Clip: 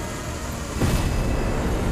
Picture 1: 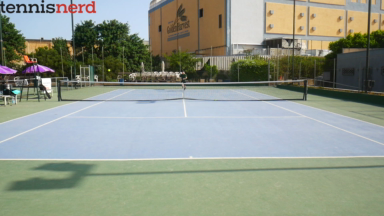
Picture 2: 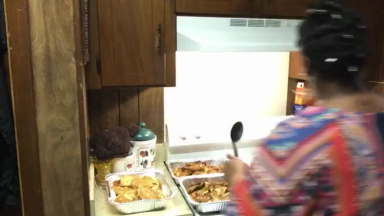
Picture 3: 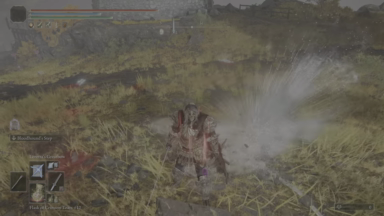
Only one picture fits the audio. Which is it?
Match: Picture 3